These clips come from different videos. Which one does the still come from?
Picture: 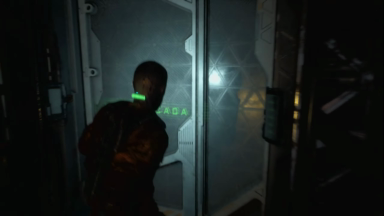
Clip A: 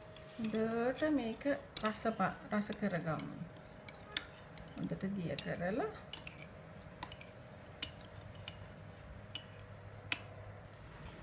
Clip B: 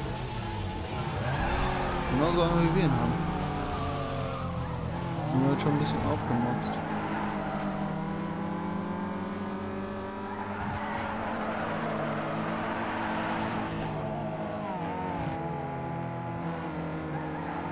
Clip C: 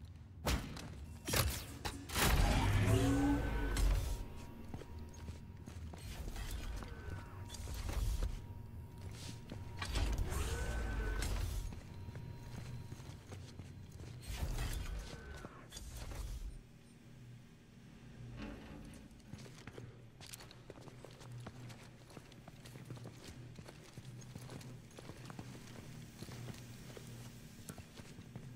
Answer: C